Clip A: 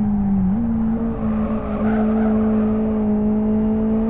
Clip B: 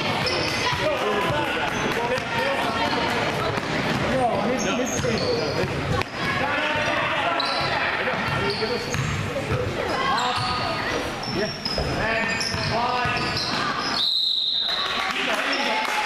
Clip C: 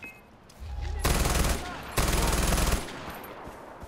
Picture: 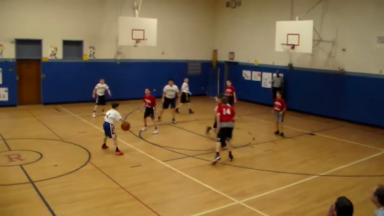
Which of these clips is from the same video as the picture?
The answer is B